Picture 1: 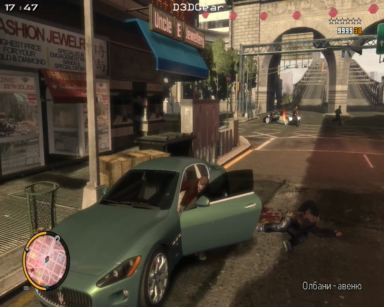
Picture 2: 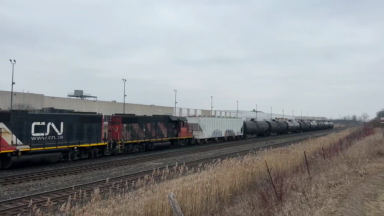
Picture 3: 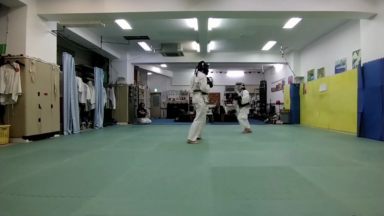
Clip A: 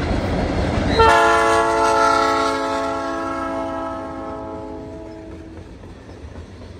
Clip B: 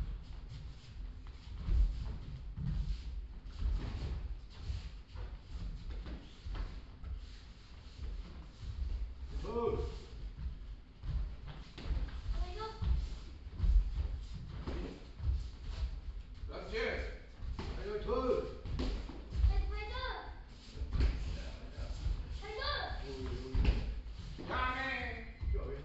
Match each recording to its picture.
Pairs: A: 2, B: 3